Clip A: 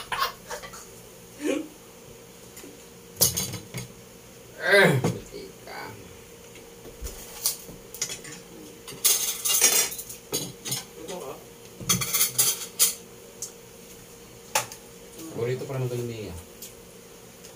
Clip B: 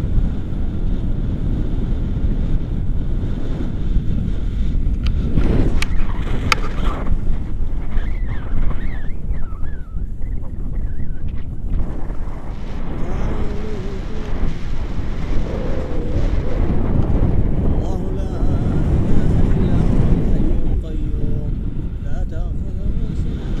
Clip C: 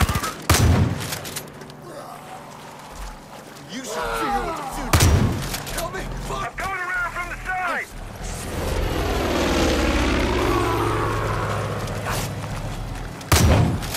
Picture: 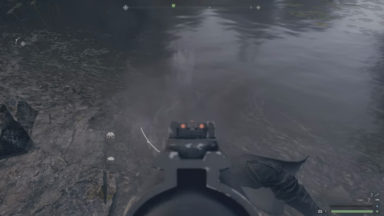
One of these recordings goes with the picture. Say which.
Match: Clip C